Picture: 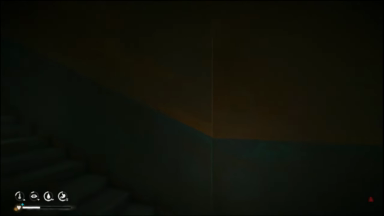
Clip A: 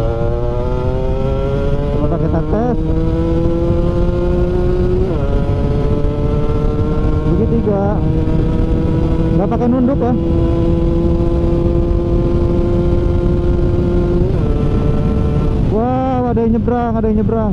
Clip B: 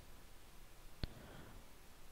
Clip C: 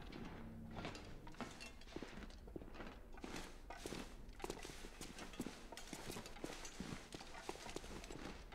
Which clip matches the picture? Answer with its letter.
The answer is C